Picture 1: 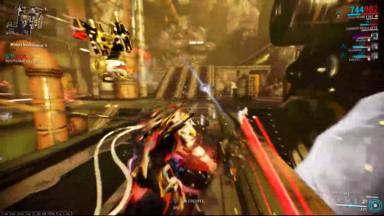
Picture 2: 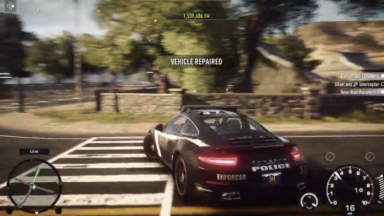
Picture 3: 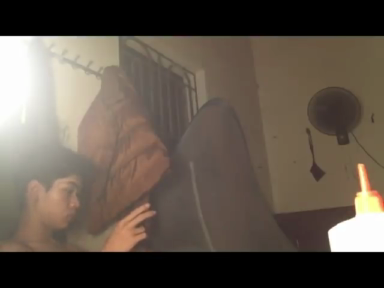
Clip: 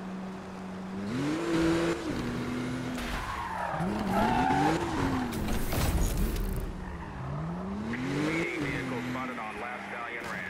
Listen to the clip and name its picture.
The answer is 2